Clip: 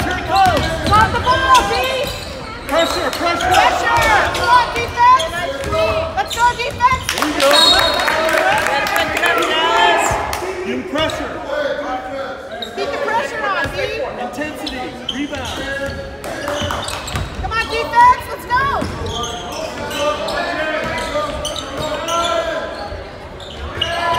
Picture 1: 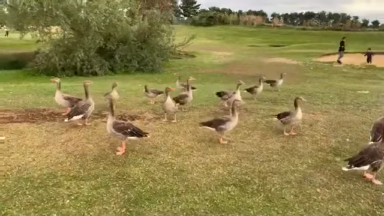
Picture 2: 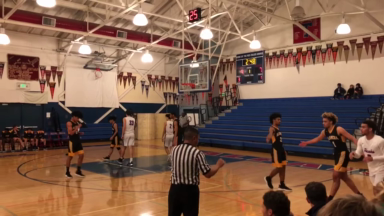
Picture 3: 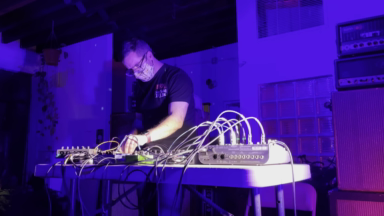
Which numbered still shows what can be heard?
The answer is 2